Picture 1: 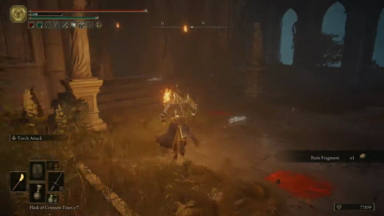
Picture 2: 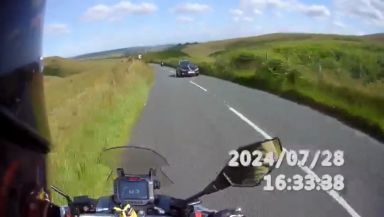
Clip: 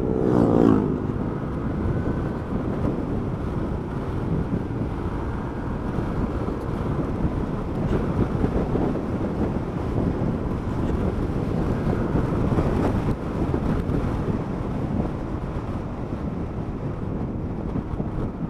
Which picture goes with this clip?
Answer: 2